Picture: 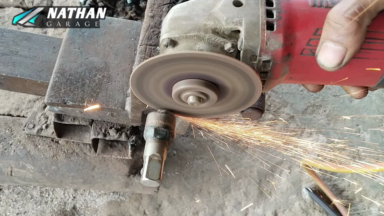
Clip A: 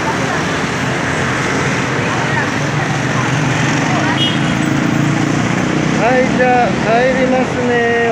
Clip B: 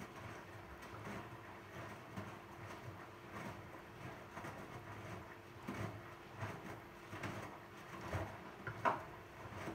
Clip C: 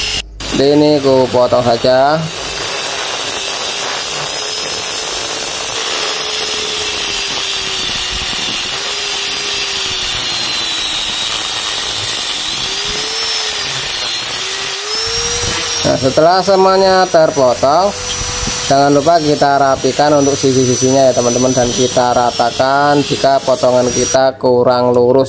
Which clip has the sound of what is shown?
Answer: C